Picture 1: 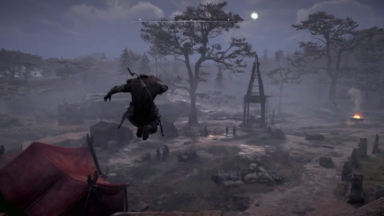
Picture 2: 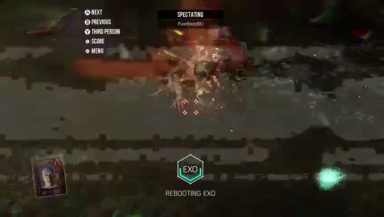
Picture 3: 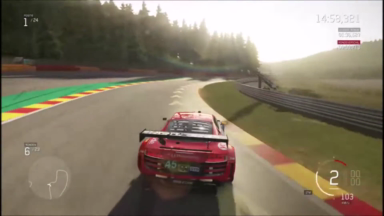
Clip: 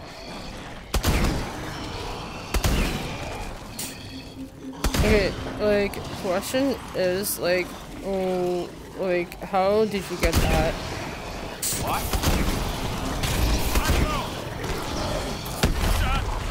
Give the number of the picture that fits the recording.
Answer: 2